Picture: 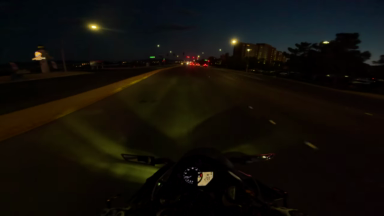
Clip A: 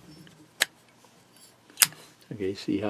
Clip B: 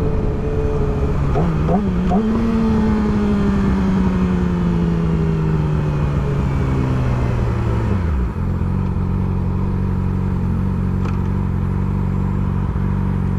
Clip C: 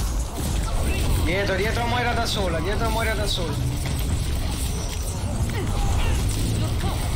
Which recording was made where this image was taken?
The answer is B